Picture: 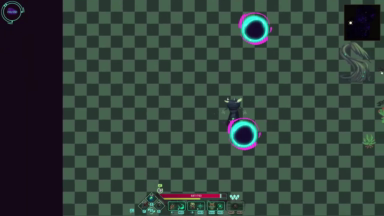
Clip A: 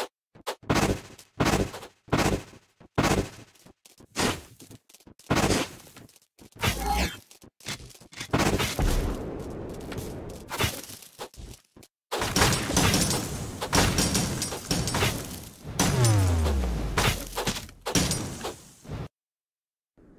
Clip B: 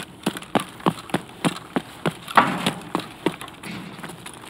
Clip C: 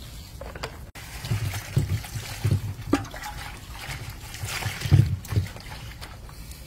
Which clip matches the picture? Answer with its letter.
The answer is A